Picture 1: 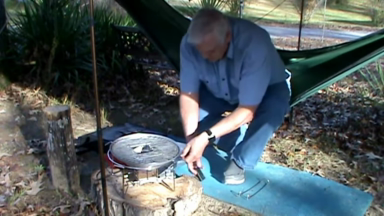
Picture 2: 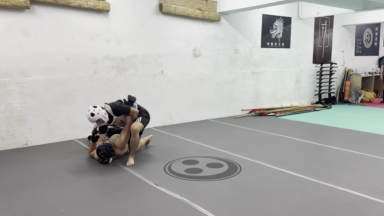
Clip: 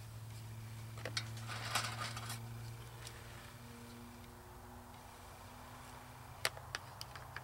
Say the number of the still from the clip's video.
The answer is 1